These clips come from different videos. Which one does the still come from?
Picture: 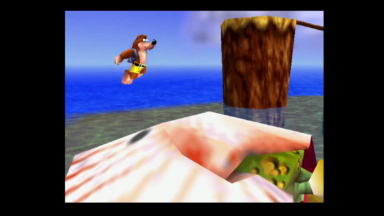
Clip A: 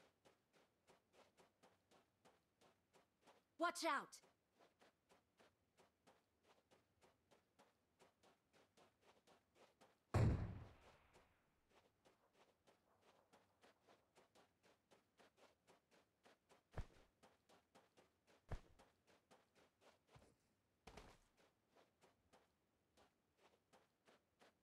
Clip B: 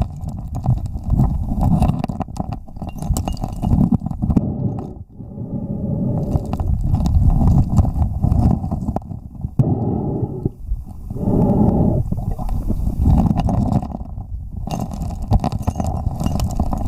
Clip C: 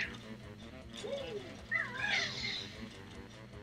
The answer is C